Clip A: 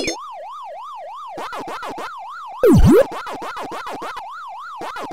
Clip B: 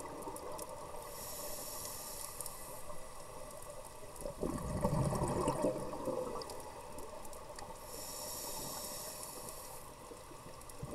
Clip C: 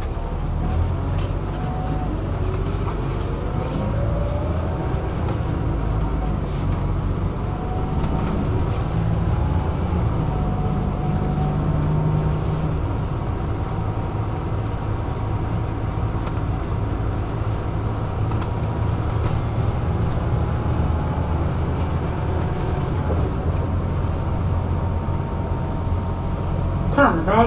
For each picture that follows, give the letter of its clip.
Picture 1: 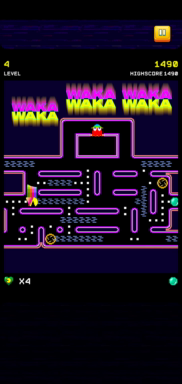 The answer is A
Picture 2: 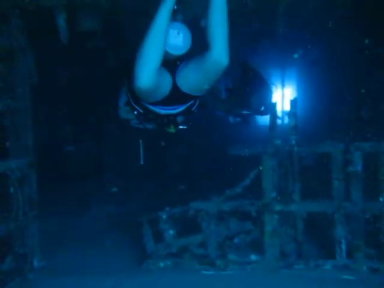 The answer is B